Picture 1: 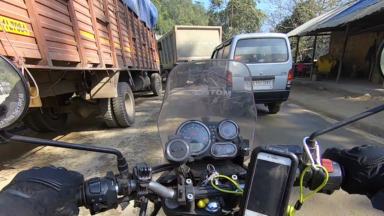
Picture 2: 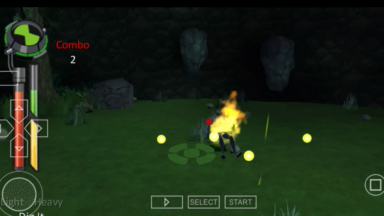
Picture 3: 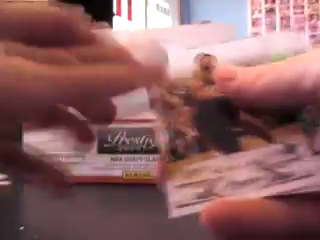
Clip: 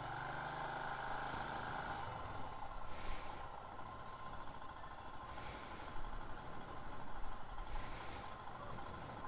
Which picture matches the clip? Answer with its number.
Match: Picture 1